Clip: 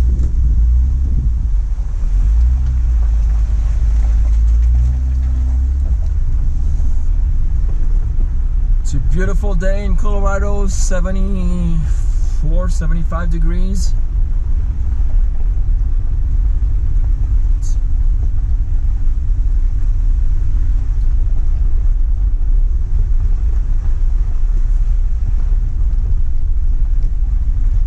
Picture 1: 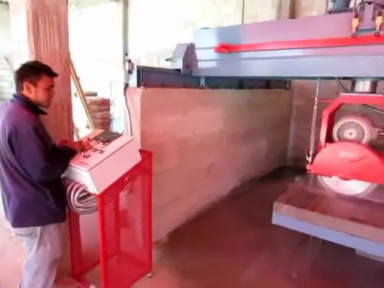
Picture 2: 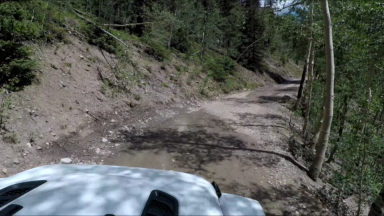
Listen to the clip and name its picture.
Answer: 2